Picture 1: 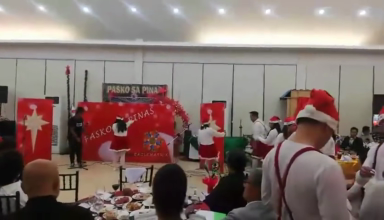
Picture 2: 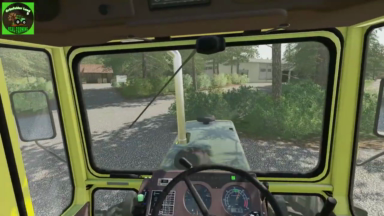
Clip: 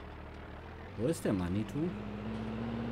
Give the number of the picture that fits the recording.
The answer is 2